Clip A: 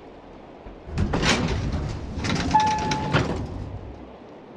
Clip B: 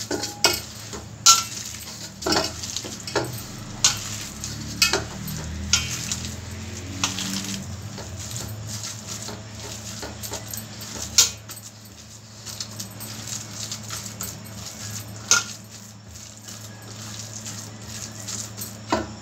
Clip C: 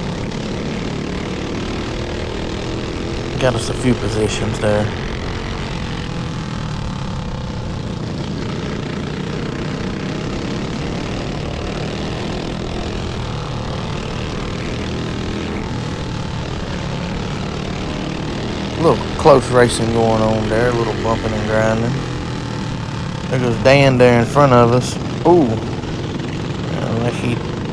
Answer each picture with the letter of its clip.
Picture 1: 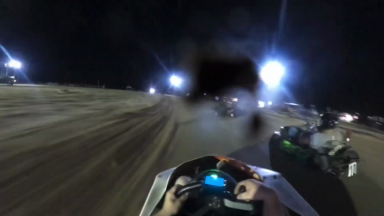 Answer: C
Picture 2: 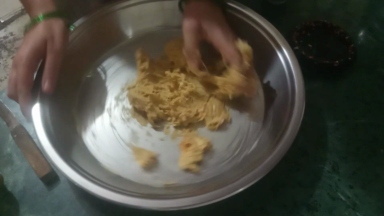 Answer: B